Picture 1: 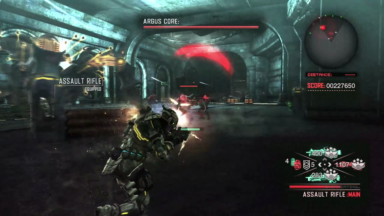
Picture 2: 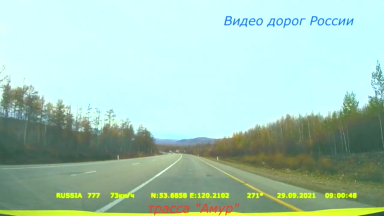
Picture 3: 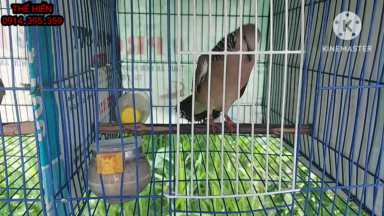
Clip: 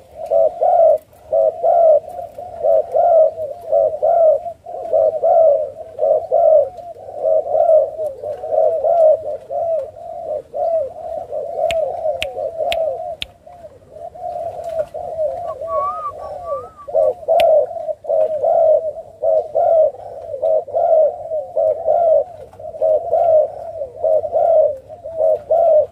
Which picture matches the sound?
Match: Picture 3